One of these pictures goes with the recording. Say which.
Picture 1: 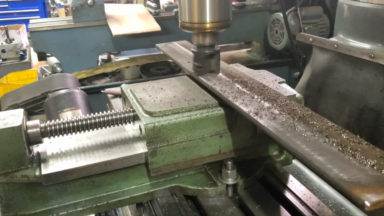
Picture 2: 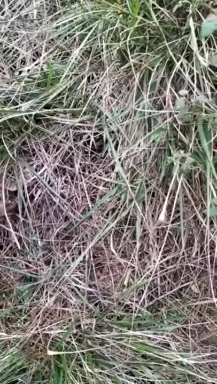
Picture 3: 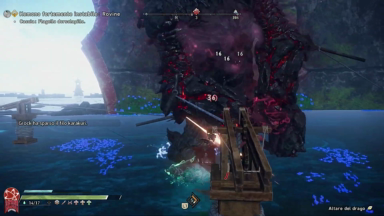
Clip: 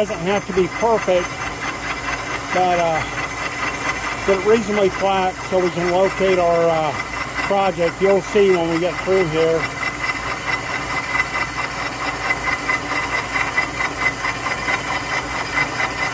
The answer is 1